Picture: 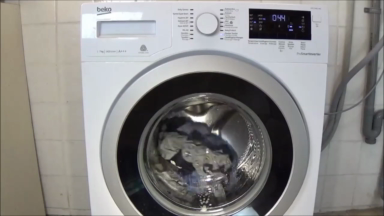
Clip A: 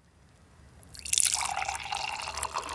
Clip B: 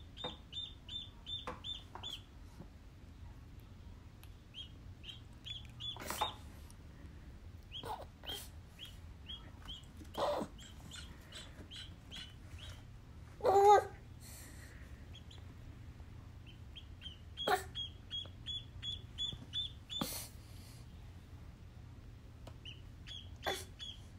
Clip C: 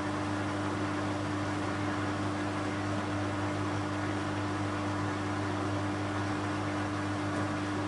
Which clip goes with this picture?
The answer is C